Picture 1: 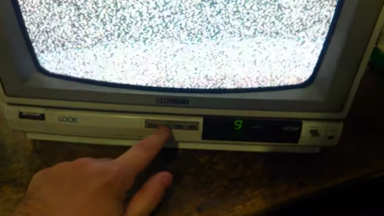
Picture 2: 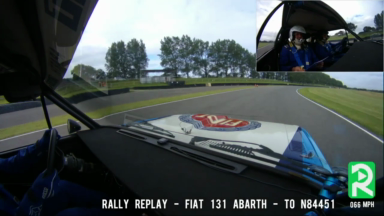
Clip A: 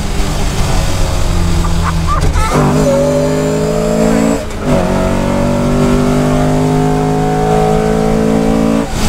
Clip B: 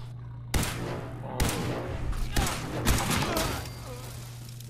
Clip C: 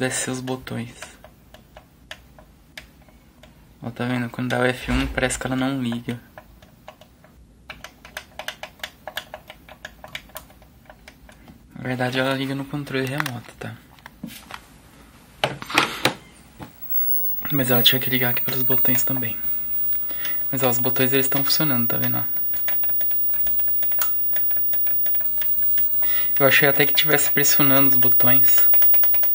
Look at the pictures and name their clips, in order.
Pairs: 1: C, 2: A